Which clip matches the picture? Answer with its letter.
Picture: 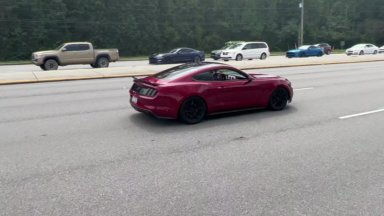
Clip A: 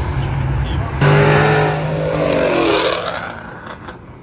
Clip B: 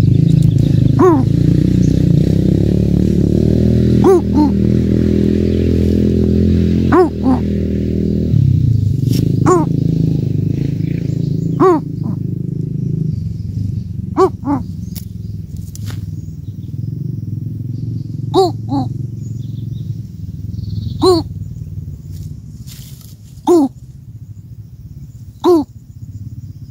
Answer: A